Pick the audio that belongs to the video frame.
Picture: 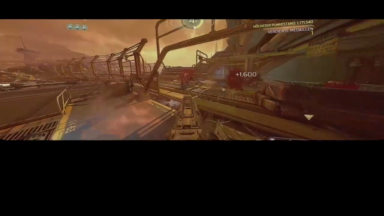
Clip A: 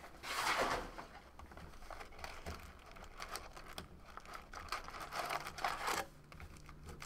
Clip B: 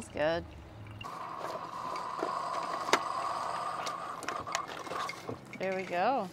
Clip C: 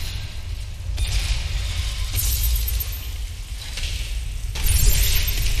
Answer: C